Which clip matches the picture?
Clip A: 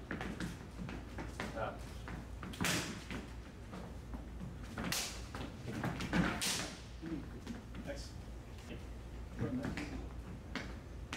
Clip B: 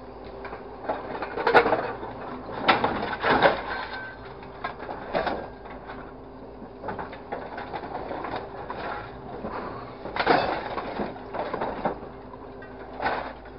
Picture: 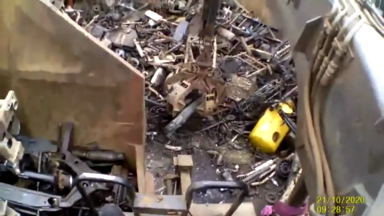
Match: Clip B